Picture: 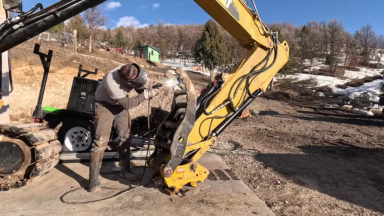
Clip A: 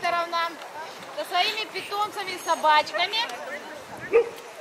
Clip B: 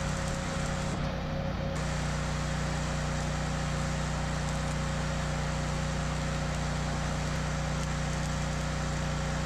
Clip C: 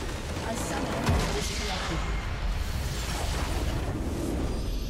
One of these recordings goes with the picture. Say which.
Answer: B